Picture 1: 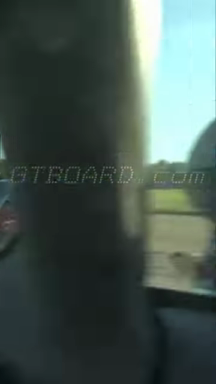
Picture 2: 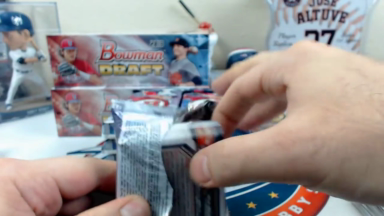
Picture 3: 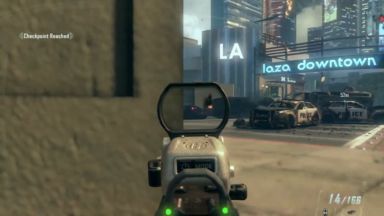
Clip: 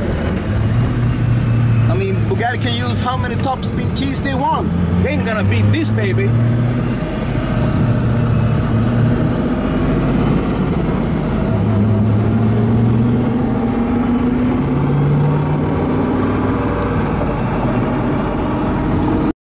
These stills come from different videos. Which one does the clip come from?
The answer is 1